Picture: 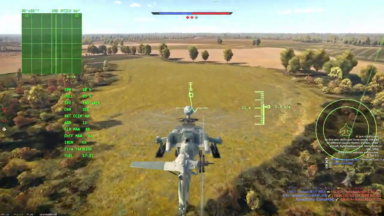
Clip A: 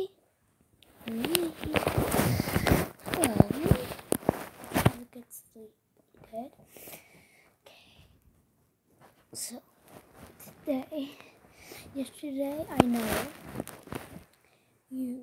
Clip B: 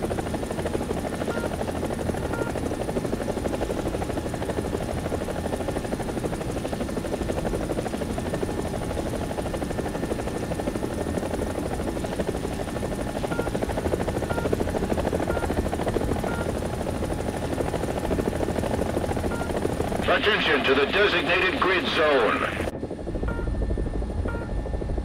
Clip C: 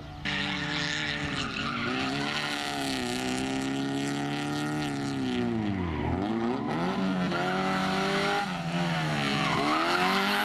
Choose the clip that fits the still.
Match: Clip B